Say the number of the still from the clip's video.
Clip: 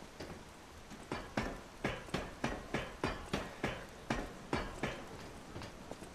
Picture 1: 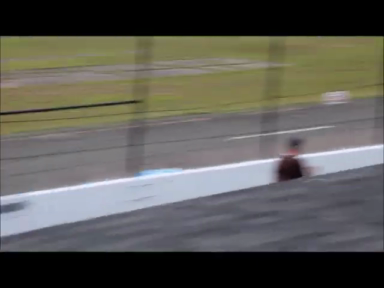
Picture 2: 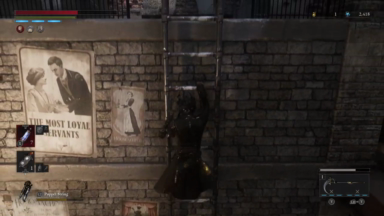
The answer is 2